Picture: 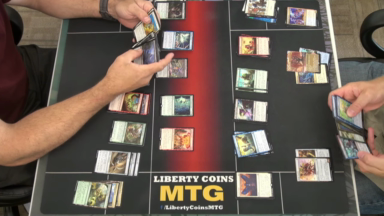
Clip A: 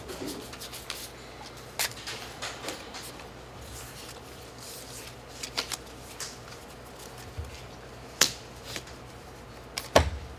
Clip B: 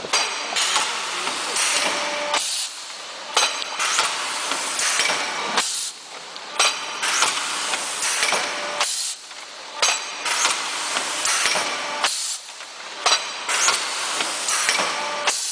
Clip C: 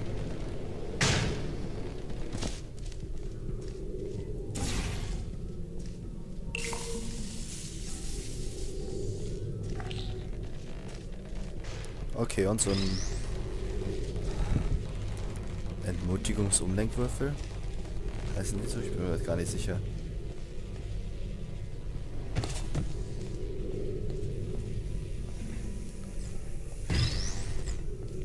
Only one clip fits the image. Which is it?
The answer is A